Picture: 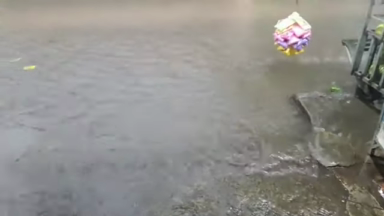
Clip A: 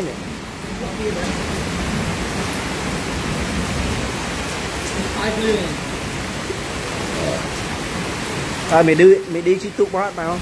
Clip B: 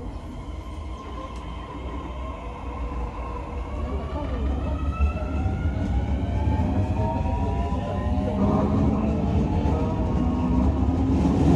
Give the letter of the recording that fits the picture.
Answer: A